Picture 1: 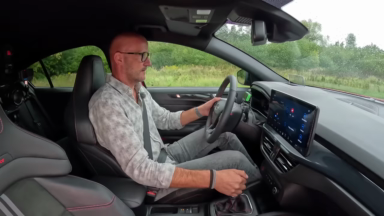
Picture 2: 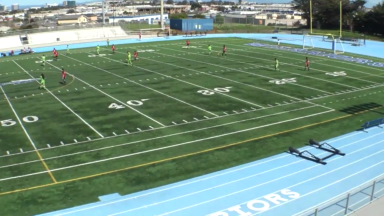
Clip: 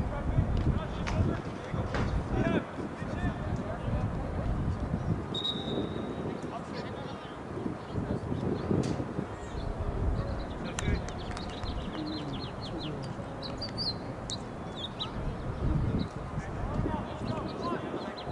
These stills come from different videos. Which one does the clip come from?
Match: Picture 2